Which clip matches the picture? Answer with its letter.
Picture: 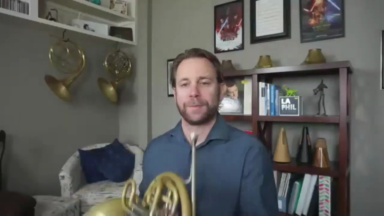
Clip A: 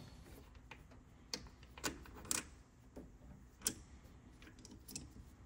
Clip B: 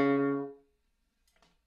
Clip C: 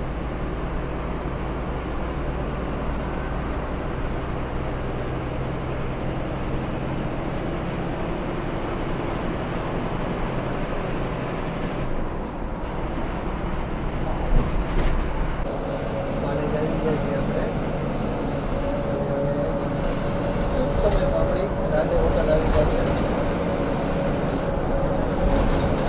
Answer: B